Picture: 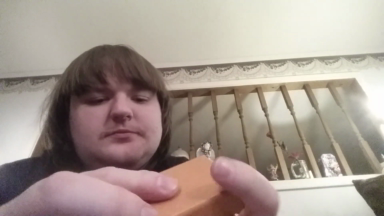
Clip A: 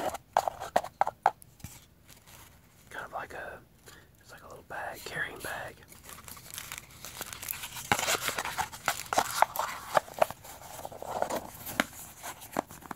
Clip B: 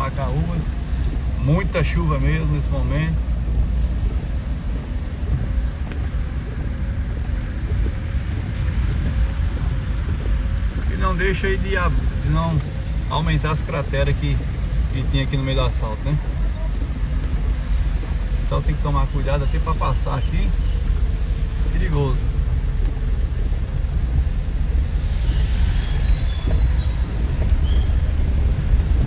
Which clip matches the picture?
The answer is A